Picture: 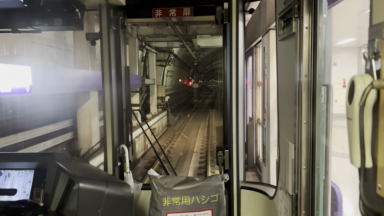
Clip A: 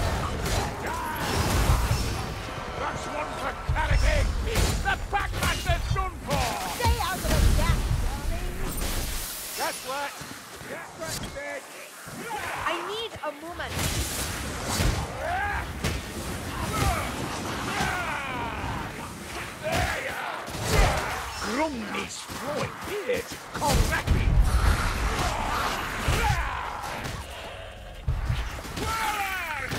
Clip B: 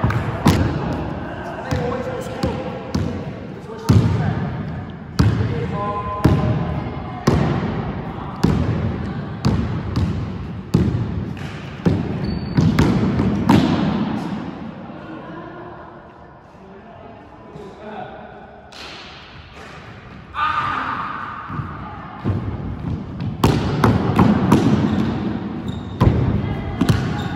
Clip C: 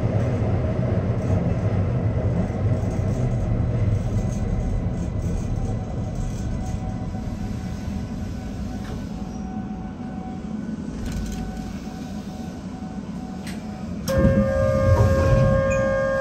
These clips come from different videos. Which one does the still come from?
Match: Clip C